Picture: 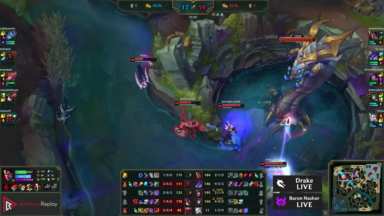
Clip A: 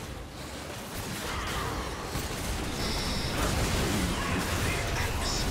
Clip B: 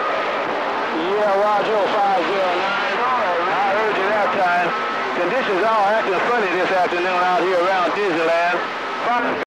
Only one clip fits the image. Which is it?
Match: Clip A